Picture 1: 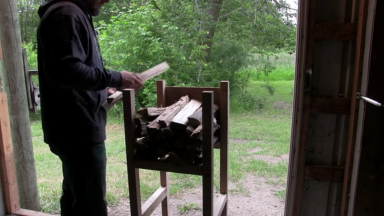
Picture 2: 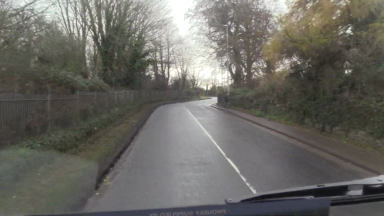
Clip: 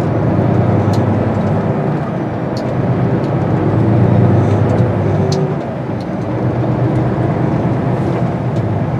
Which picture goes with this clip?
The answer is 2